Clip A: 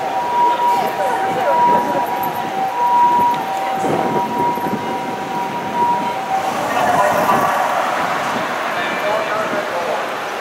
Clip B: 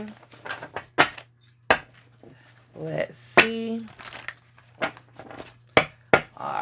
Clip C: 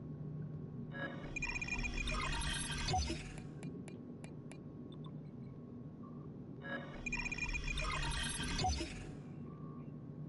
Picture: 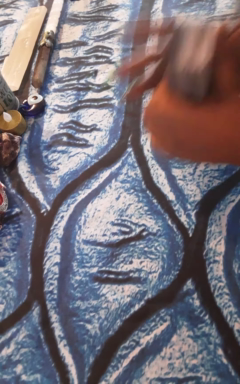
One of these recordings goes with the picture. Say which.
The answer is B